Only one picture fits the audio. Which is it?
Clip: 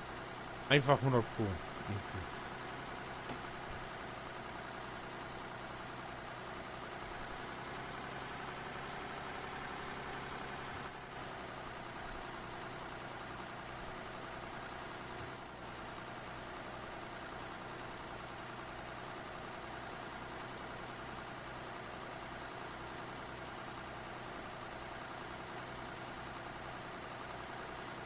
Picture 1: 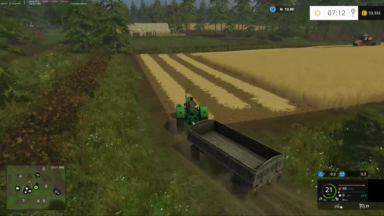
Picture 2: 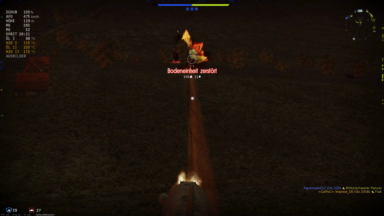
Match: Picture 1